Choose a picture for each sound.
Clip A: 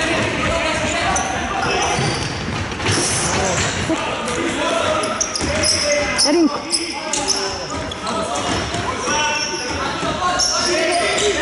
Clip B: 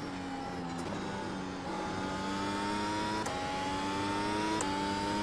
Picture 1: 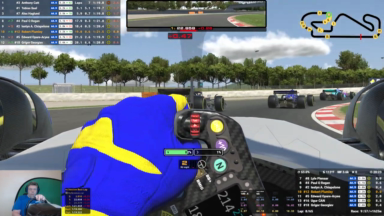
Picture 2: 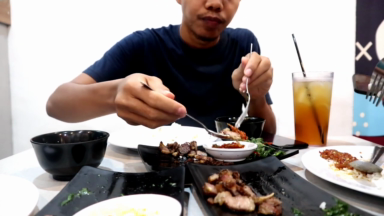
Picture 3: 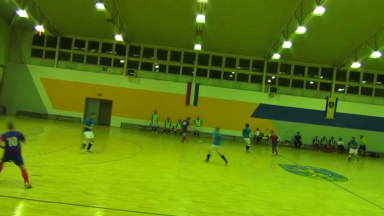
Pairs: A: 3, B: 1